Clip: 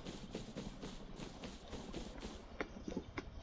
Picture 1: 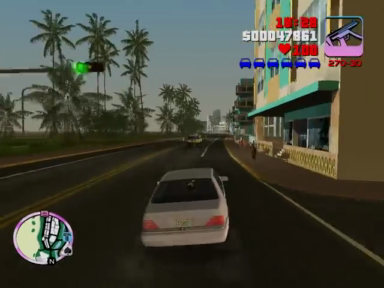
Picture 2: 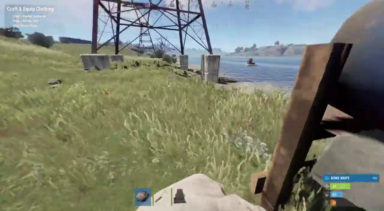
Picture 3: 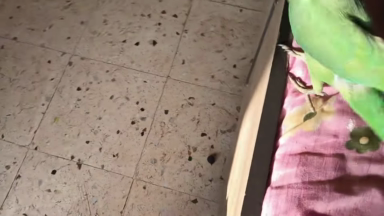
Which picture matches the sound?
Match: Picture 2